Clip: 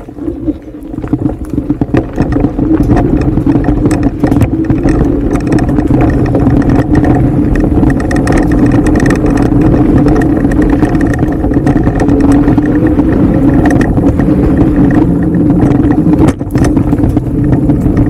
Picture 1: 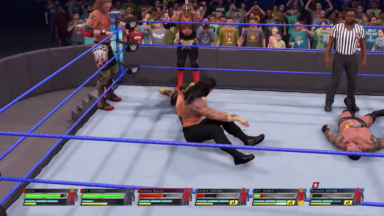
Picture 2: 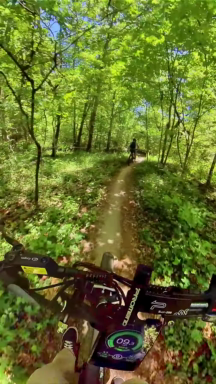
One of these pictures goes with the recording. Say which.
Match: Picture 2